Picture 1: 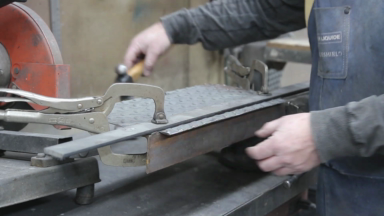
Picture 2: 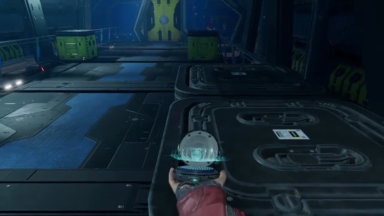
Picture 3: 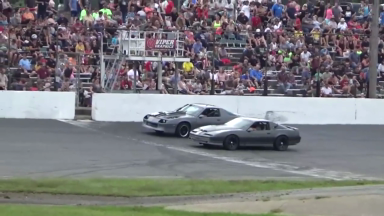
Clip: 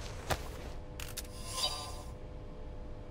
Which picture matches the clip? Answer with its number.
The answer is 2